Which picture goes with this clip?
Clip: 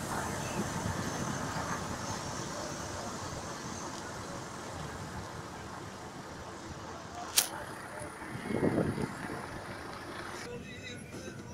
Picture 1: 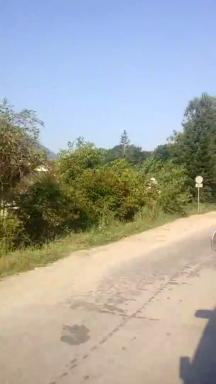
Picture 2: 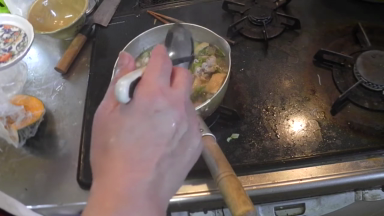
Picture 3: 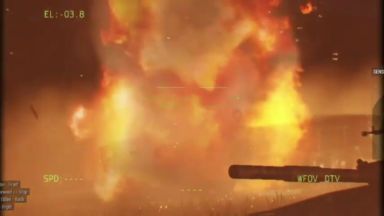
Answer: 1